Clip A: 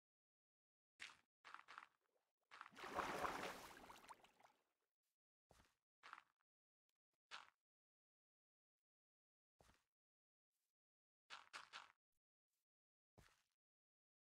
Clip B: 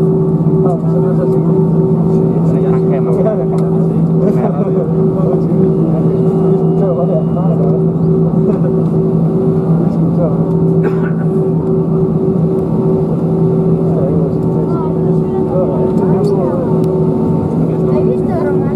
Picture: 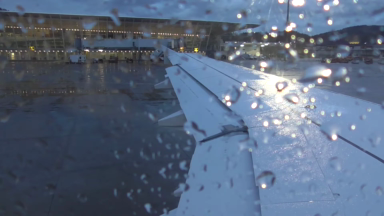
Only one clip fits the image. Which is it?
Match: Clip B